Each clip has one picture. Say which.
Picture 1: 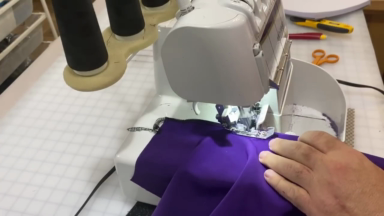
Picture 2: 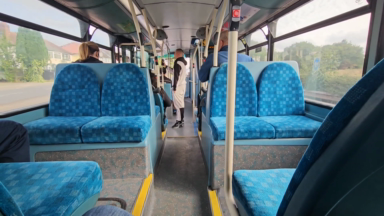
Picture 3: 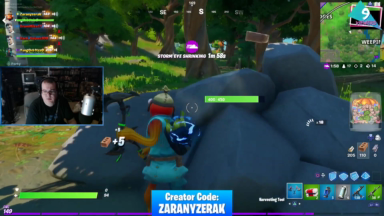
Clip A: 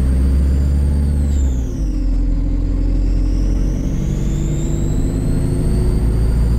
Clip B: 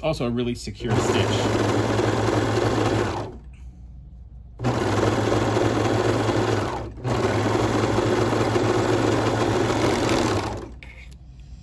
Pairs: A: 2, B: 1